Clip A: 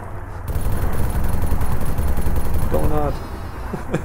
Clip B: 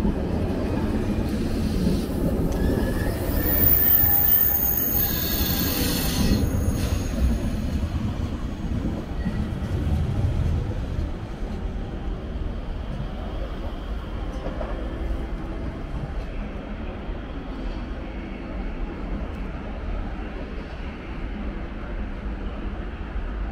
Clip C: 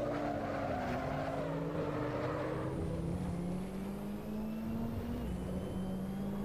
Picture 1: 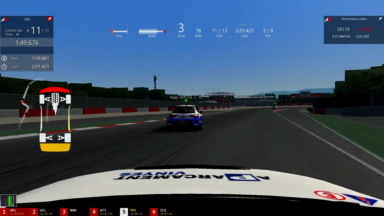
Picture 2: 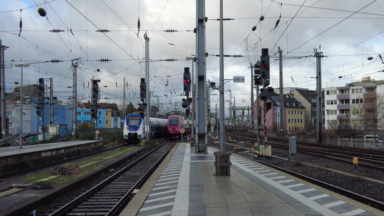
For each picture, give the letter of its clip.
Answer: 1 C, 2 B